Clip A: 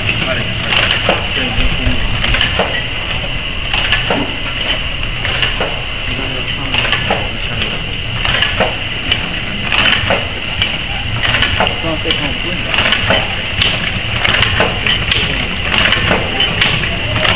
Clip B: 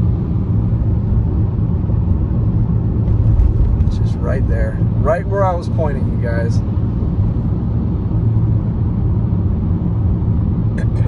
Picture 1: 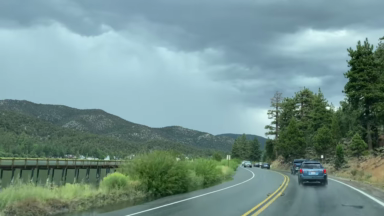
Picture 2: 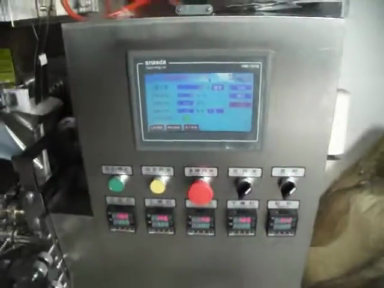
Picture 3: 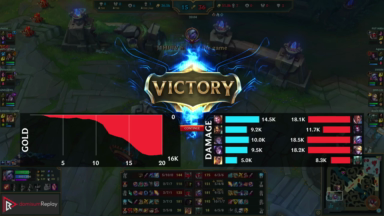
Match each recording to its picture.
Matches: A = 2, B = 1